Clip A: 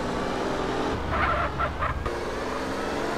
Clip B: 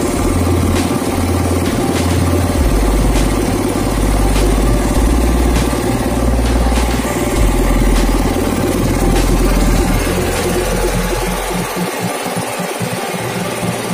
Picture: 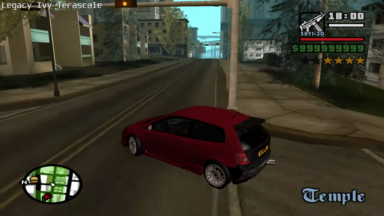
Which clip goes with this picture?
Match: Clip A